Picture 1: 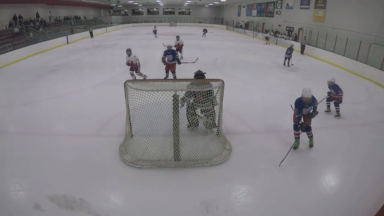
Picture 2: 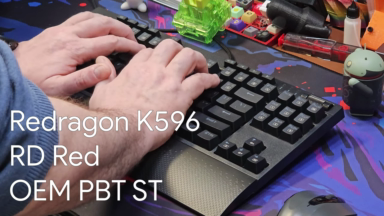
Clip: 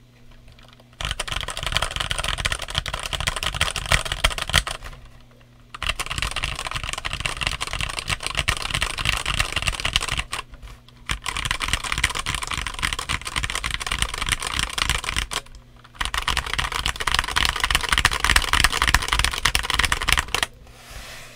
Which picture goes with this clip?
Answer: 2